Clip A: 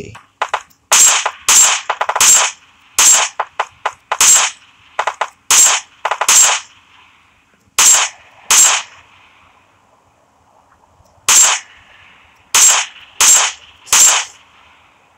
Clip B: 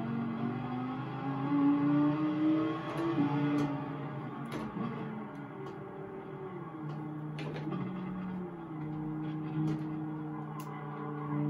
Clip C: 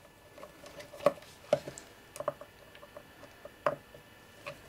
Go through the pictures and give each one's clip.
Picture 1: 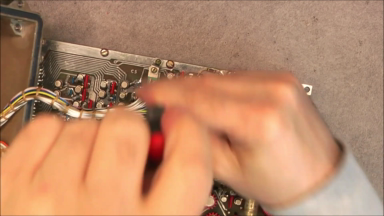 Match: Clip C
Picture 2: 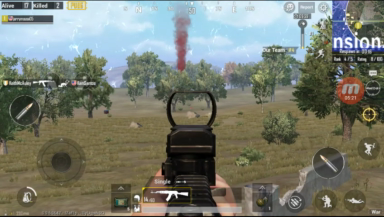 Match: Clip A